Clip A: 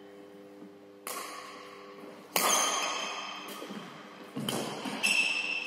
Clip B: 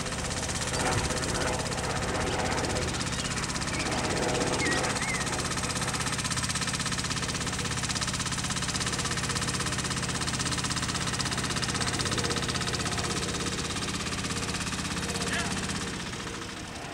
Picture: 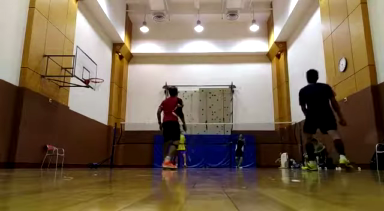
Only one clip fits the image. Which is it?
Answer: A